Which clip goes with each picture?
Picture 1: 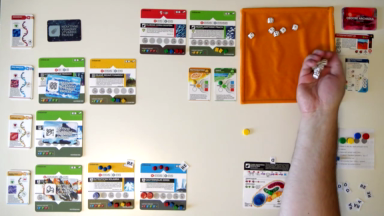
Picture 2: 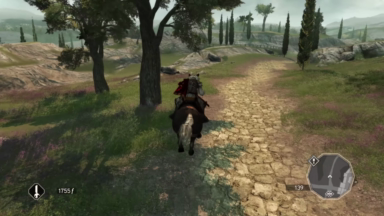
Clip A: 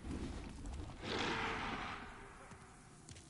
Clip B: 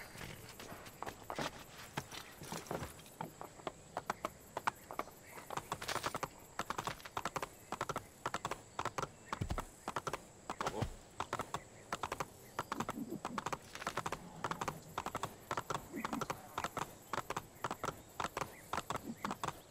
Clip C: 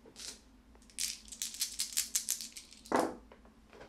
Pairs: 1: C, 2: B